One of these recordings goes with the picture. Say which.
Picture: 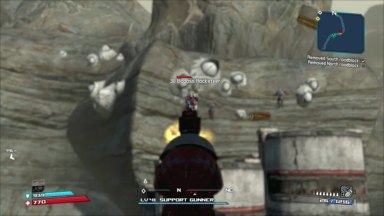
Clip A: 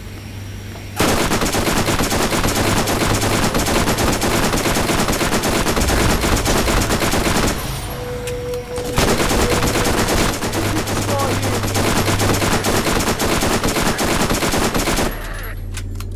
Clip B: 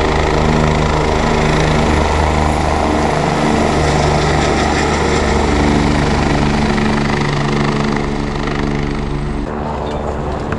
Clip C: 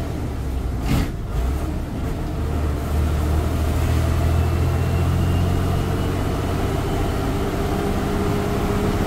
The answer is A